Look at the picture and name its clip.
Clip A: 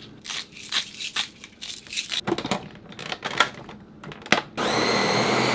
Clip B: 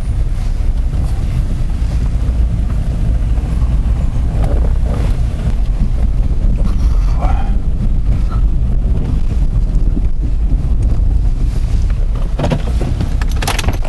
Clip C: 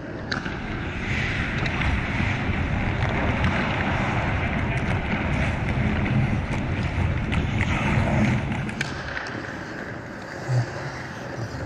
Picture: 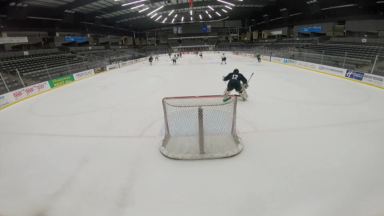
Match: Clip C